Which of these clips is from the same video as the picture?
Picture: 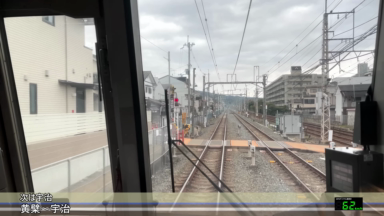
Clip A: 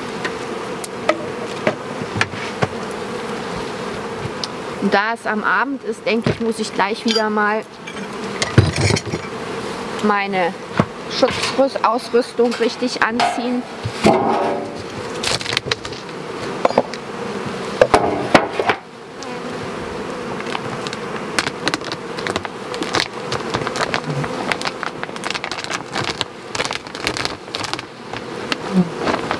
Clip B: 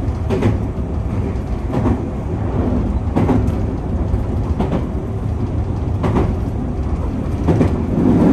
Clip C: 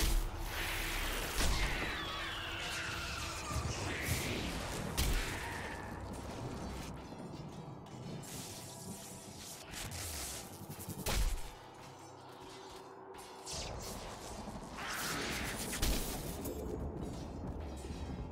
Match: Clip B